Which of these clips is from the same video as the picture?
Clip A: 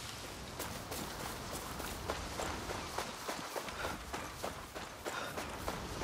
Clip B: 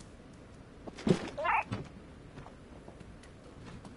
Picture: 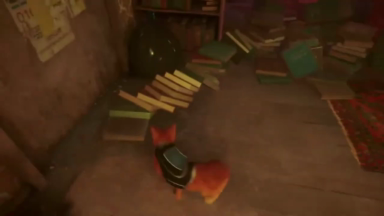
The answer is B